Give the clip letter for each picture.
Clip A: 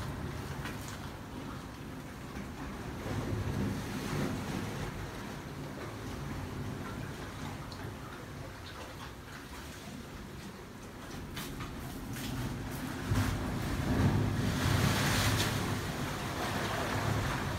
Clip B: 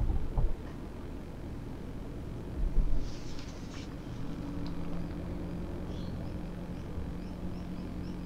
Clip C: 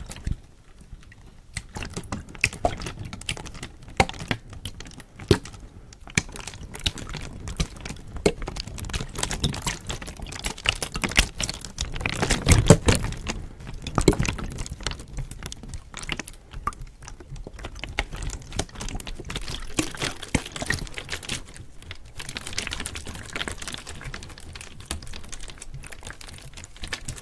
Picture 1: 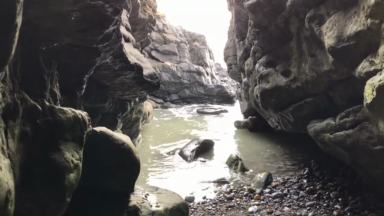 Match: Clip A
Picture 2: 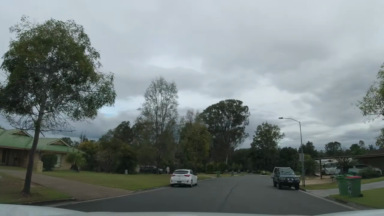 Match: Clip B